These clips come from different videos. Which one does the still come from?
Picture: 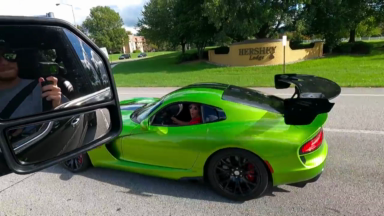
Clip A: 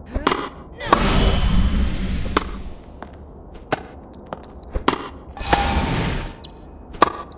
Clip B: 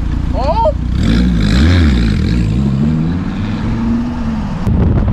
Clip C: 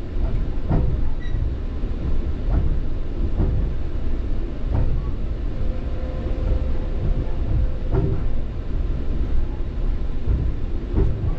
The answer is B